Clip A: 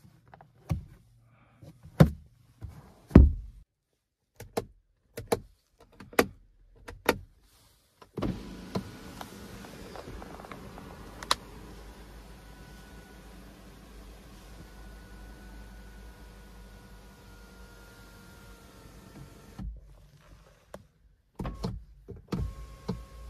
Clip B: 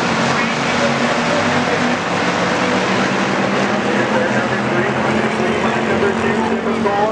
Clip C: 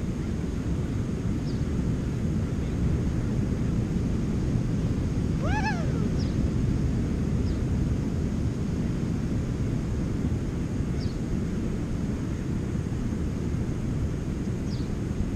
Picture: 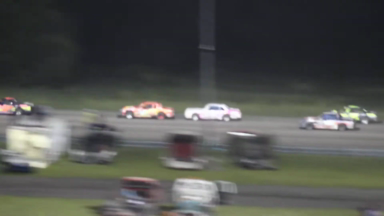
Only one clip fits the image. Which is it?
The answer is B